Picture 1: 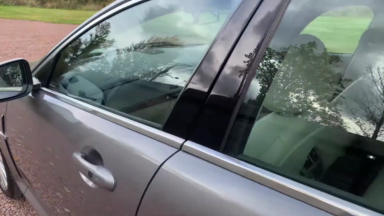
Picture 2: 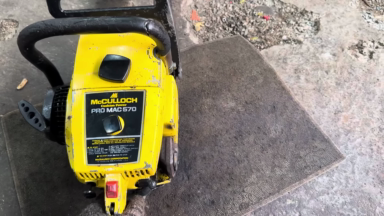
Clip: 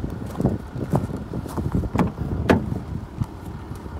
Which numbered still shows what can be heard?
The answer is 1